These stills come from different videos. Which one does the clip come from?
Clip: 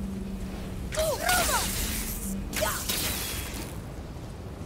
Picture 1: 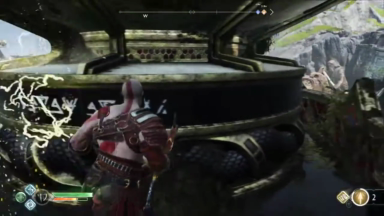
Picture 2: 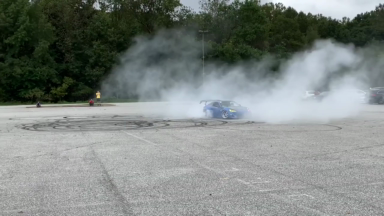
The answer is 1